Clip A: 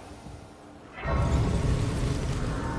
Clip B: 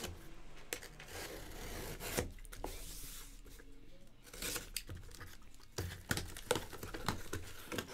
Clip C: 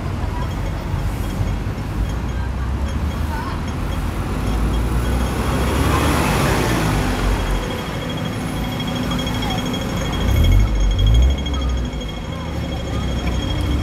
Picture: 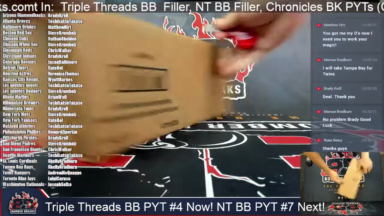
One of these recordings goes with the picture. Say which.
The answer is B